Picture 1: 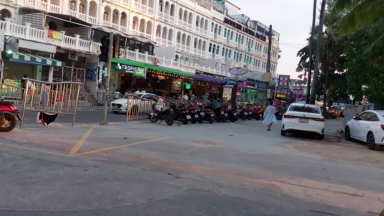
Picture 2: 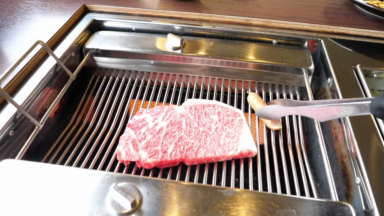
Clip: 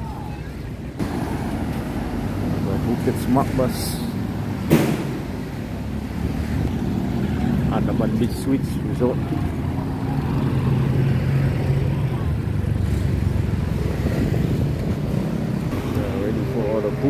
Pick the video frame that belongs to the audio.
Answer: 1